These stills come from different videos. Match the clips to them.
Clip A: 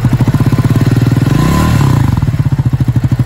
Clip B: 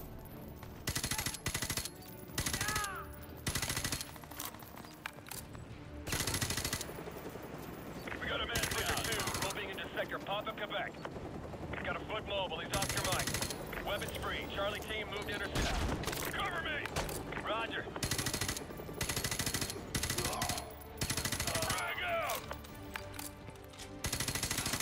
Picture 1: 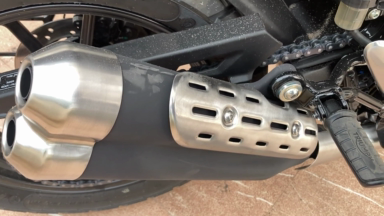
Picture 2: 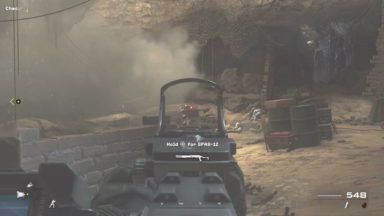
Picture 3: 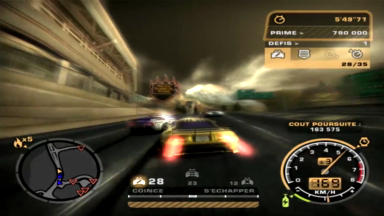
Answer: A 1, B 2